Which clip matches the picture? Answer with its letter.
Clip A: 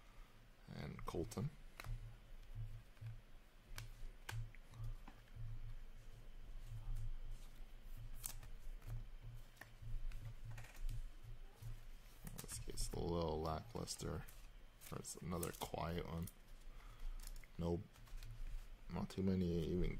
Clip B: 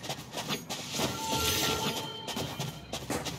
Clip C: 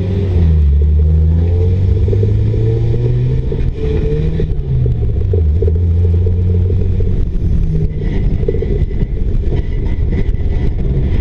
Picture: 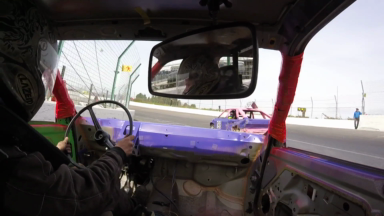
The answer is C